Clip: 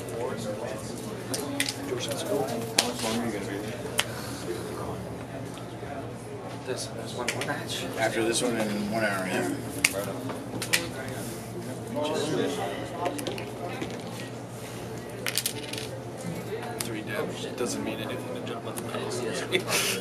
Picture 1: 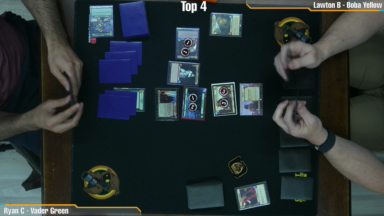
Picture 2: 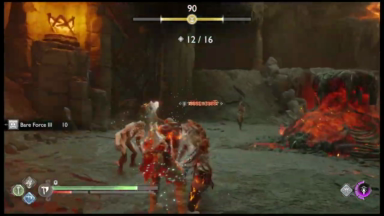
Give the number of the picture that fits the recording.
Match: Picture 1